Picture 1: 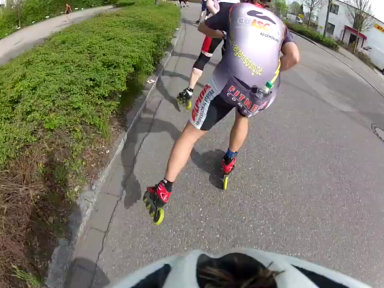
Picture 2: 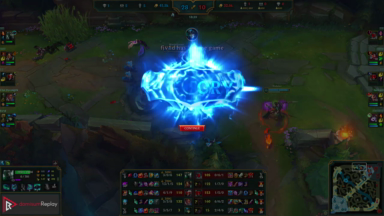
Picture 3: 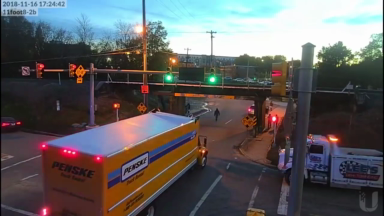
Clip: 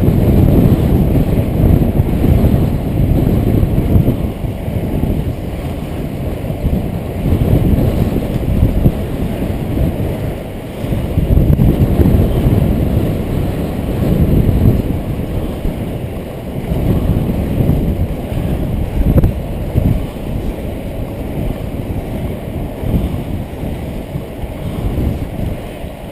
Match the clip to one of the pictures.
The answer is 1